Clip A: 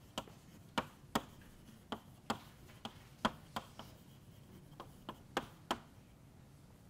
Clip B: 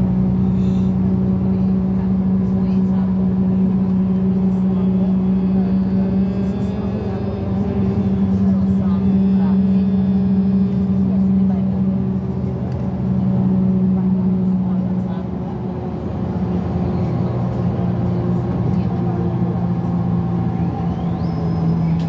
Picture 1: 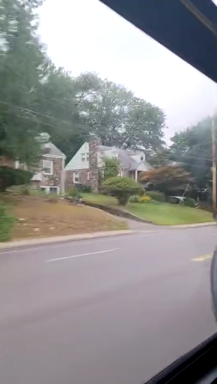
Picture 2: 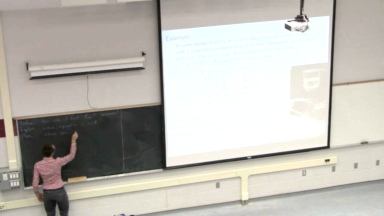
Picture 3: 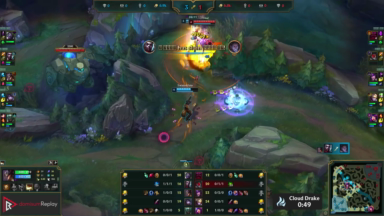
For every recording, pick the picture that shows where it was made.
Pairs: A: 2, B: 1